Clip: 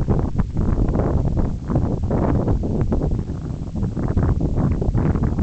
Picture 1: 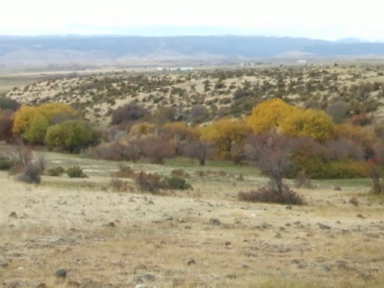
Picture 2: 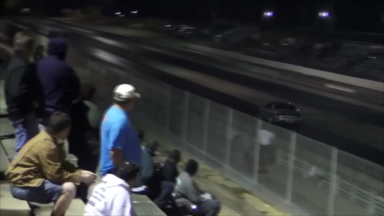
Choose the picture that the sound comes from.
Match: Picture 1